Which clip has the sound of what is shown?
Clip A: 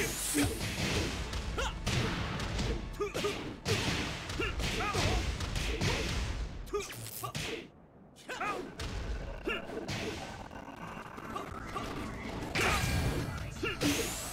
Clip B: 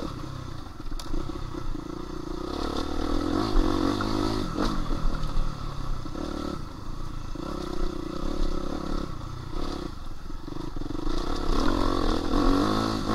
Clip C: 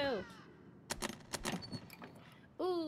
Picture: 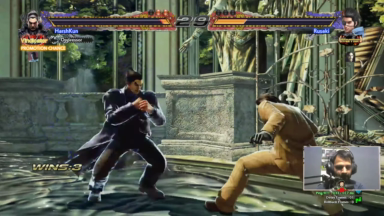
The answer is A